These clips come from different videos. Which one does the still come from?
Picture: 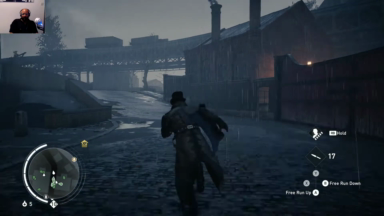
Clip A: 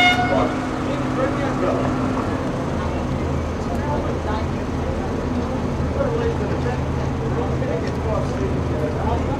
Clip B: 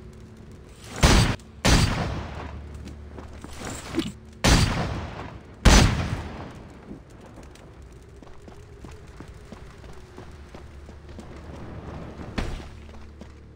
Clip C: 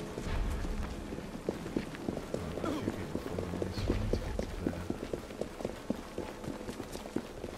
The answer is C